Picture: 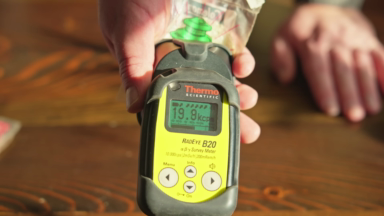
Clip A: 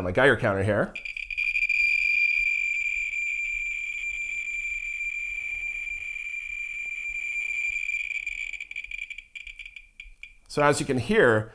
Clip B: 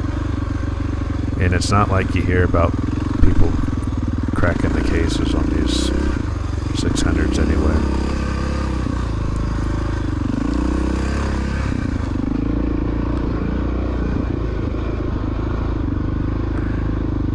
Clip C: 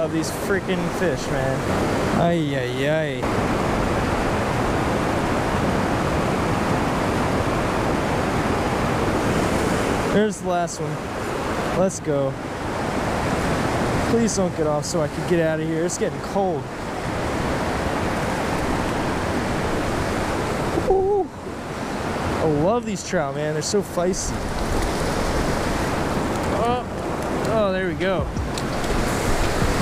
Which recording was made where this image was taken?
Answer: A